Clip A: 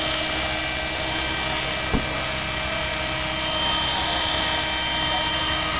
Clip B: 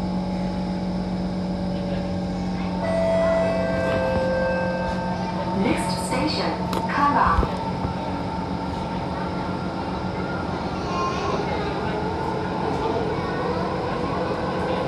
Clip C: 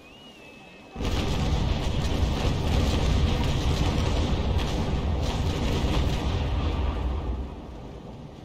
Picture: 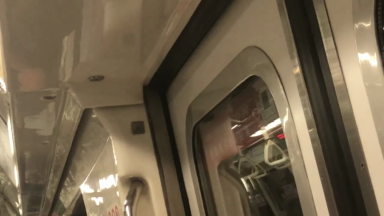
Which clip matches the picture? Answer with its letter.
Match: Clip B